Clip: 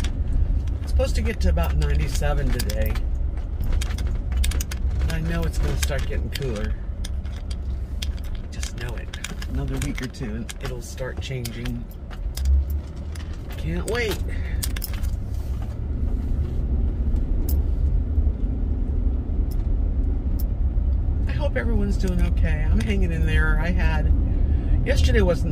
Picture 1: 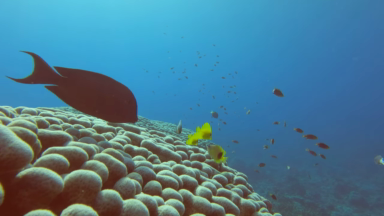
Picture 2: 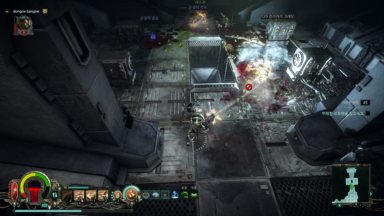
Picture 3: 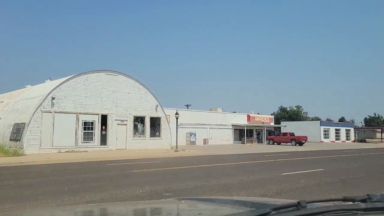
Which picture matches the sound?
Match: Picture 3